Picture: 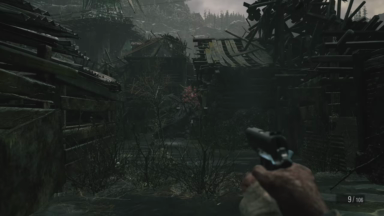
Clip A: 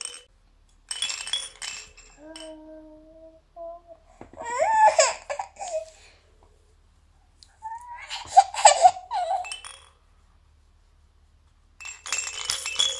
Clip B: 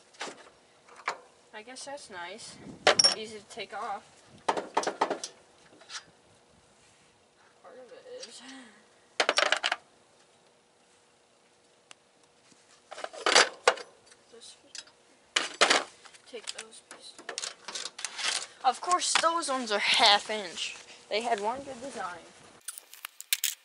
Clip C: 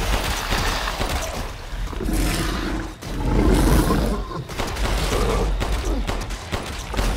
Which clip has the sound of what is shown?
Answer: C